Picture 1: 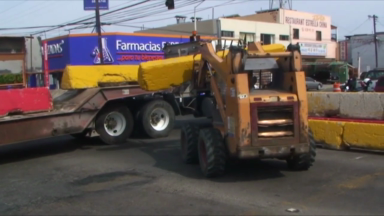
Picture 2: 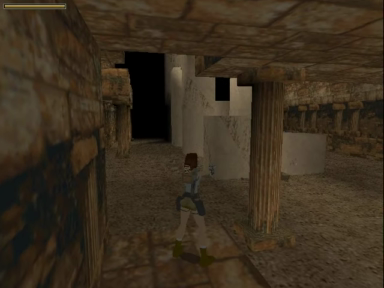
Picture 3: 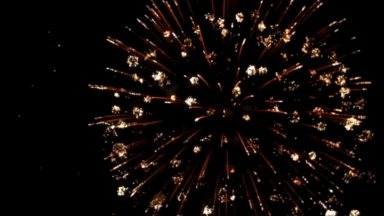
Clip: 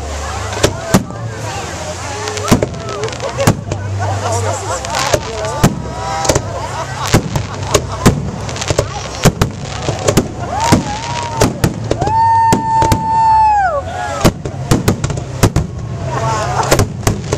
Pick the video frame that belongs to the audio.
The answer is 3